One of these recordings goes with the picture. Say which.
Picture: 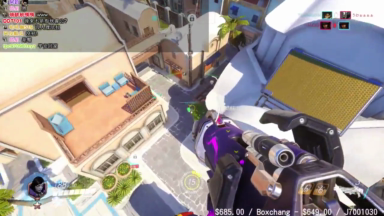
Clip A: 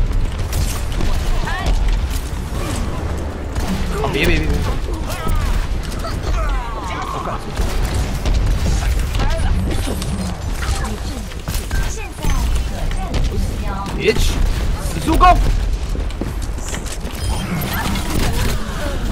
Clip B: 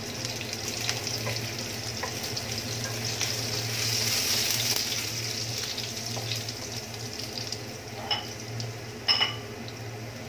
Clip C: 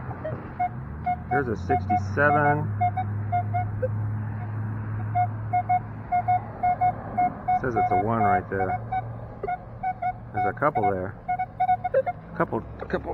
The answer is A